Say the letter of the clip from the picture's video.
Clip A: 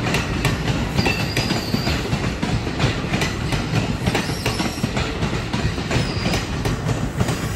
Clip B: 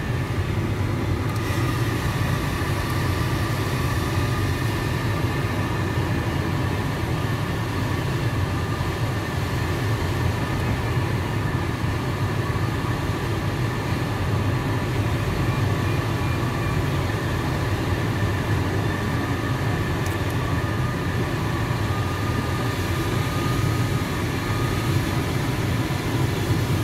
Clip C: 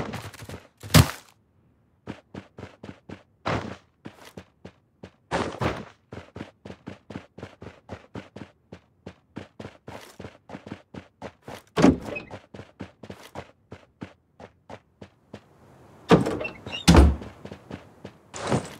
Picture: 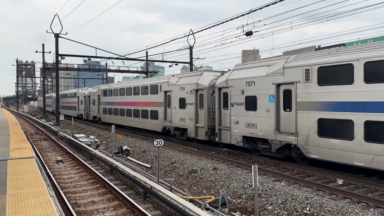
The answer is A